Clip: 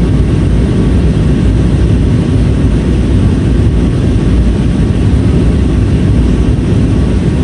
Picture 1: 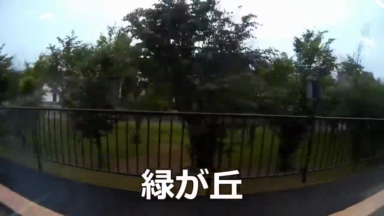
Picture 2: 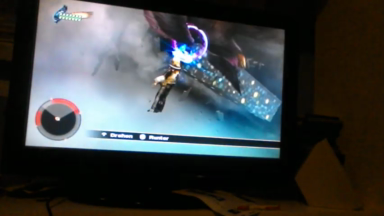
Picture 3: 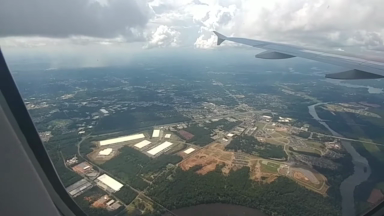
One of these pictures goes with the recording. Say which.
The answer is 3